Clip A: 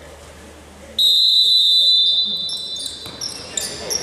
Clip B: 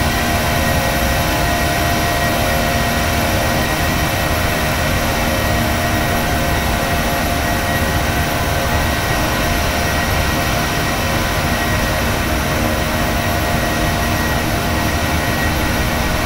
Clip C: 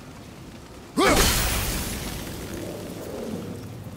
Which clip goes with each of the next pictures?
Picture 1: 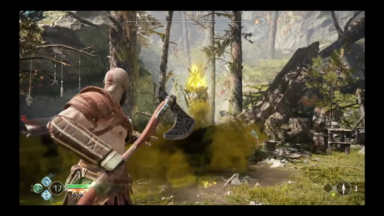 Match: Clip C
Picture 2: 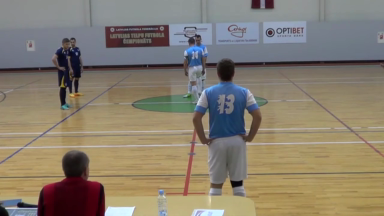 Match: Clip A